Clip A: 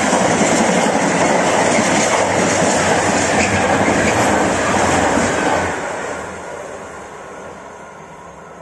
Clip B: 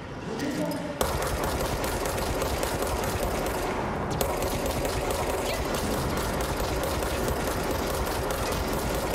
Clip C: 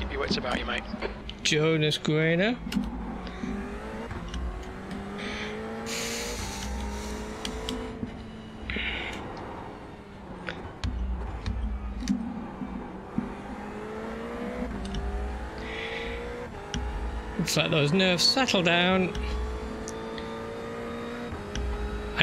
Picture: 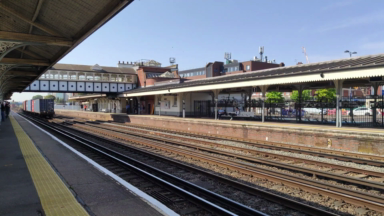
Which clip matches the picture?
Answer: A